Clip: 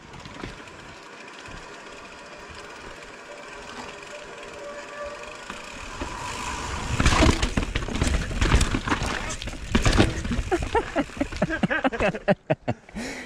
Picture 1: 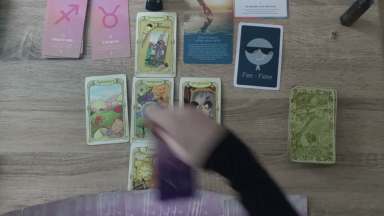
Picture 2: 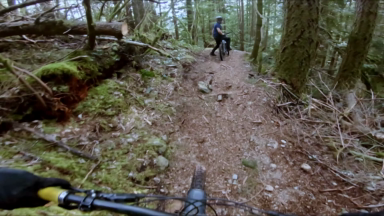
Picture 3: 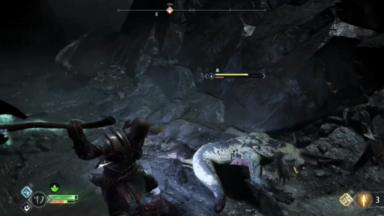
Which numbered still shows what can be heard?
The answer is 2